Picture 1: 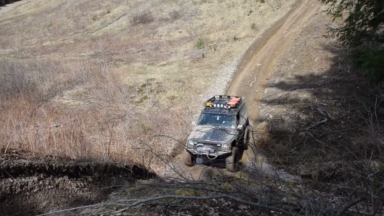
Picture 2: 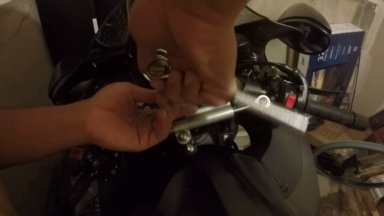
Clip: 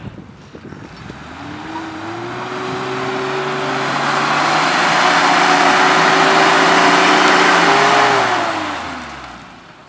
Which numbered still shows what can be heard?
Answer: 1